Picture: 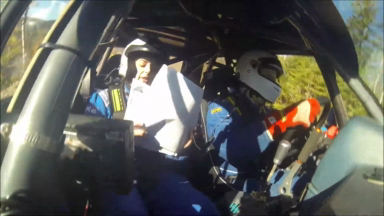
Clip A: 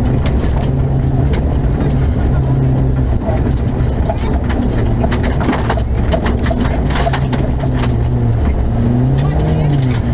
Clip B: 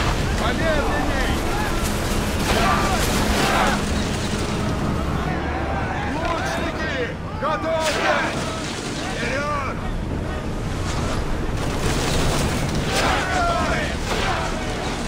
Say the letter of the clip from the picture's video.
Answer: A